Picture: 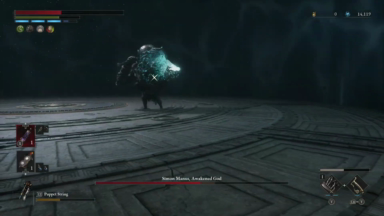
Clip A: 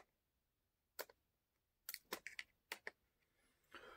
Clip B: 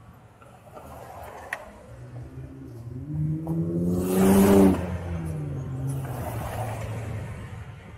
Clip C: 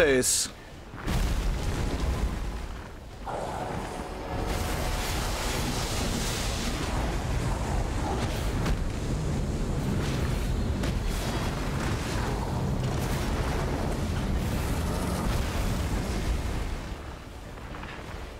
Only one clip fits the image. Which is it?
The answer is C